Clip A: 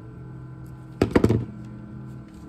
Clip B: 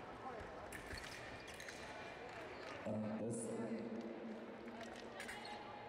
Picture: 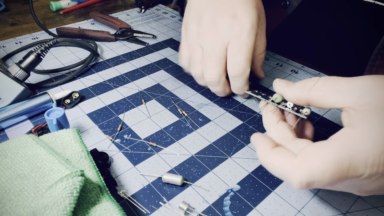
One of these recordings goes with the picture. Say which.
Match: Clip A